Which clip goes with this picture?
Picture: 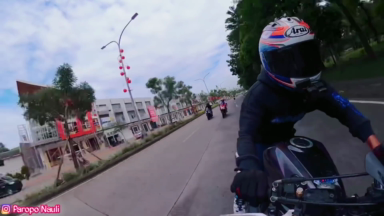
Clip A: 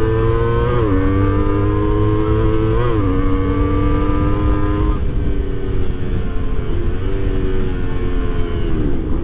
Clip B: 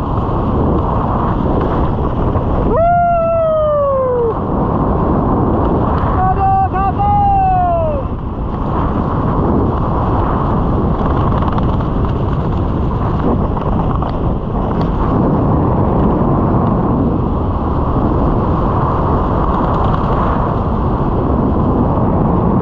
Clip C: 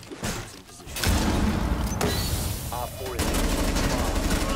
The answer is A